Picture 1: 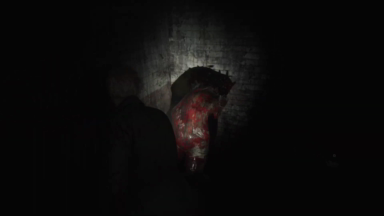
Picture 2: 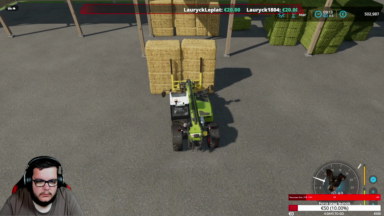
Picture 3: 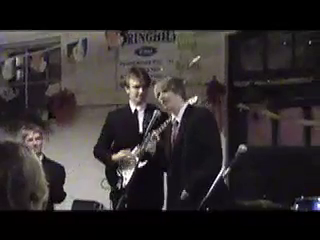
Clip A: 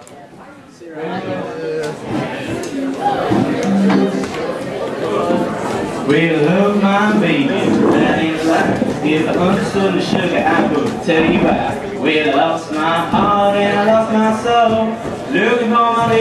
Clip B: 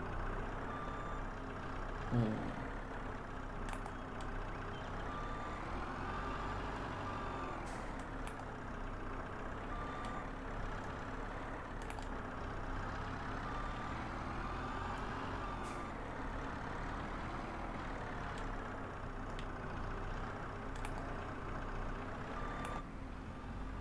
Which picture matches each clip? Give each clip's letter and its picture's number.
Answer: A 3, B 2